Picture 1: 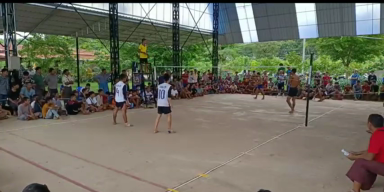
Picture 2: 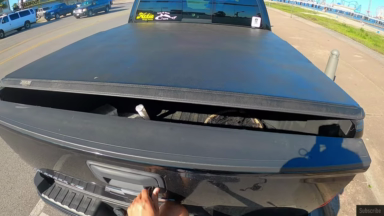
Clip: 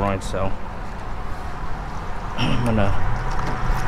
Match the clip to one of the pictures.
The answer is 2